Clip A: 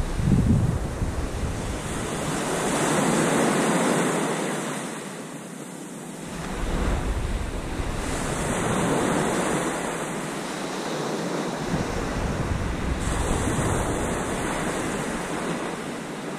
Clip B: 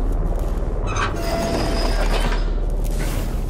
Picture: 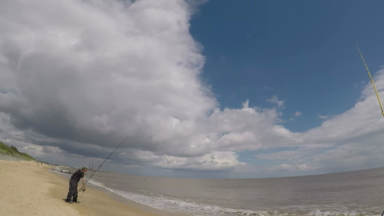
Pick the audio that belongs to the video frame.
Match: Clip A